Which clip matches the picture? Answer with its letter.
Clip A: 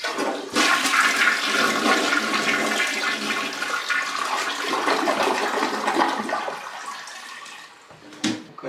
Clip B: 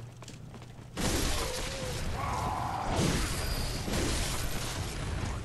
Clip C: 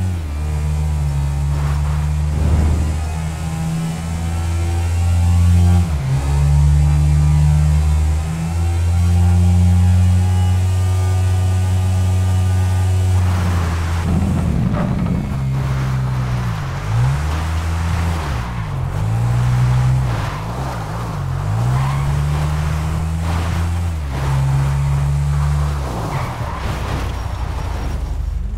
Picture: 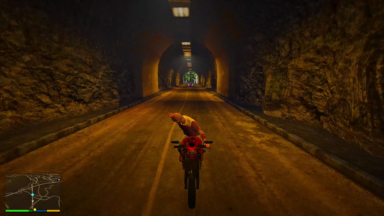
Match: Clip C